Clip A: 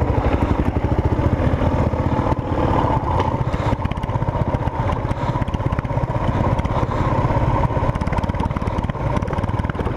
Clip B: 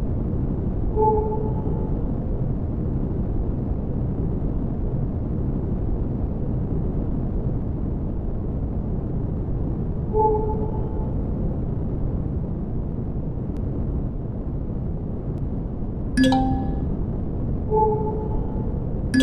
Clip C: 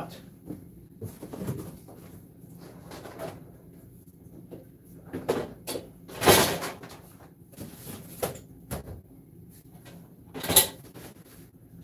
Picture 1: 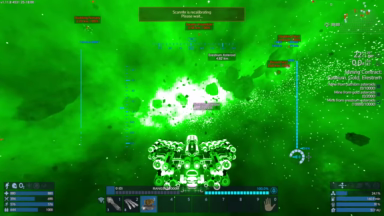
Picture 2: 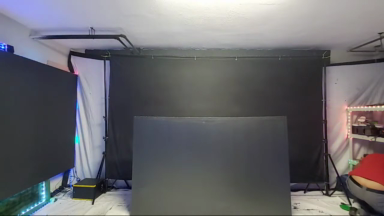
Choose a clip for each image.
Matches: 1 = B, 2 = C